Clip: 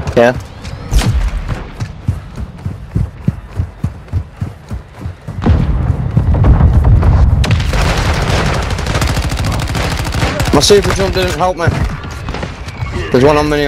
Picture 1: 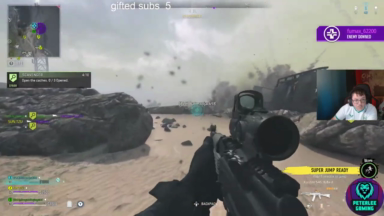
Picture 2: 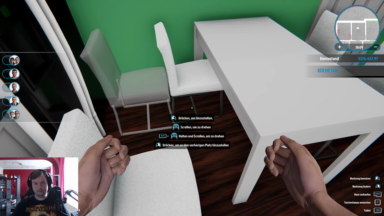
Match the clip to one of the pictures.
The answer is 1